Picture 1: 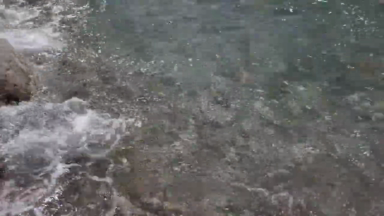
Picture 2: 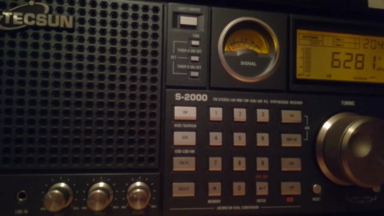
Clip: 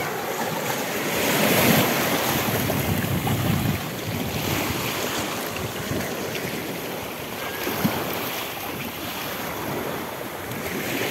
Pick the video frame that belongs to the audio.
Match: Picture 1